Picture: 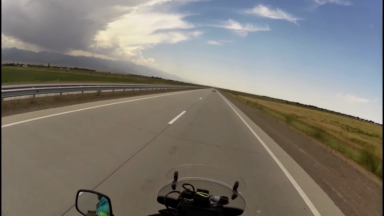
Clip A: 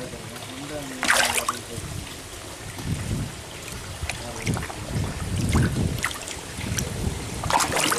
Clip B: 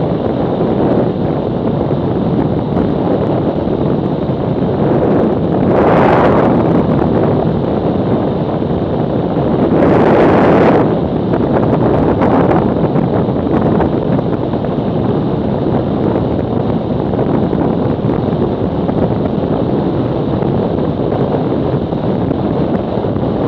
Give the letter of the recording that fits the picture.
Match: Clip B